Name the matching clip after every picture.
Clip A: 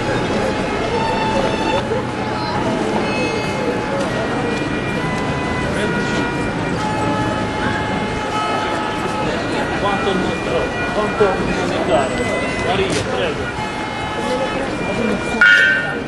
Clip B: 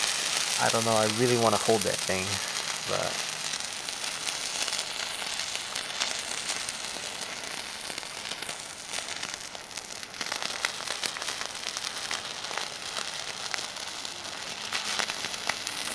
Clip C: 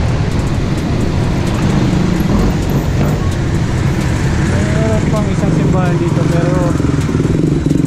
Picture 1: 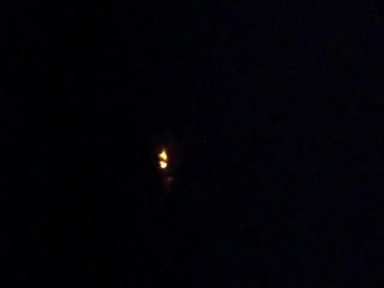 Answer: B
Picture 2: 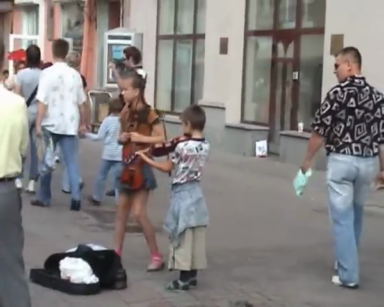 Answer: A